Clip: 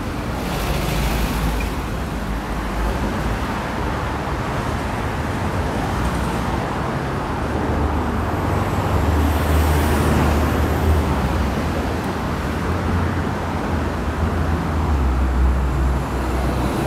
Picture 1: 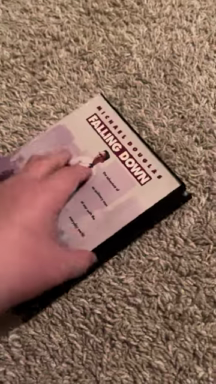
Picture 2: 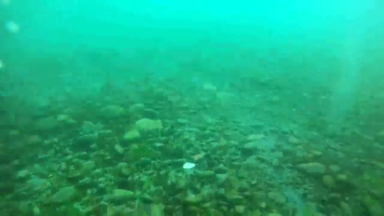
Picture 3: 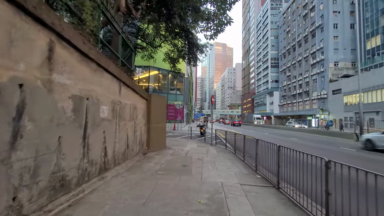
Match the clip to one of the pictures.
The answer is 3